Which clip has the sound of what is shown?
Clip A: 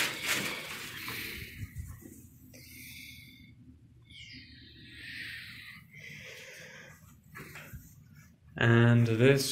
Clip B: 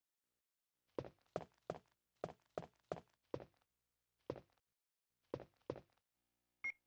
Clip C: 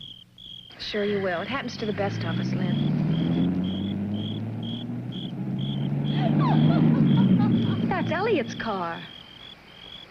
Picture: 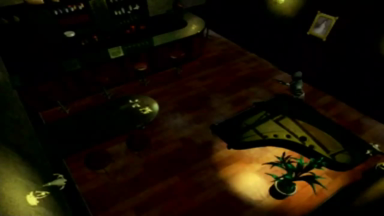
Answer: B